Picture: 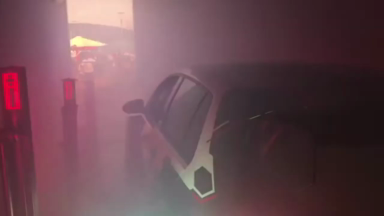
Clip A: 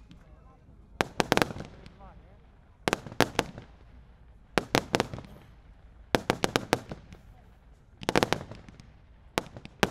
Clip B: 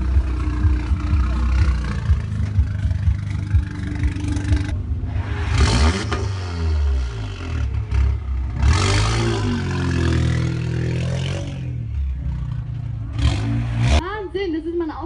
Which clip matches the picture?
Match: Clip B